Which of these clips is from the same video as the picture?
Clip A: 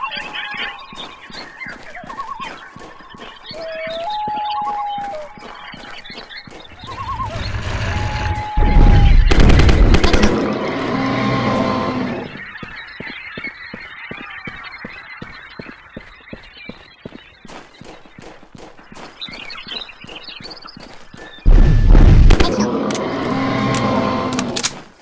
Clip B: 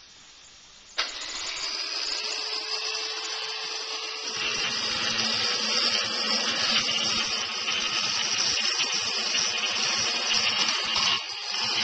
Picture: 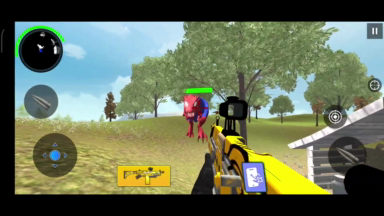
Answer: A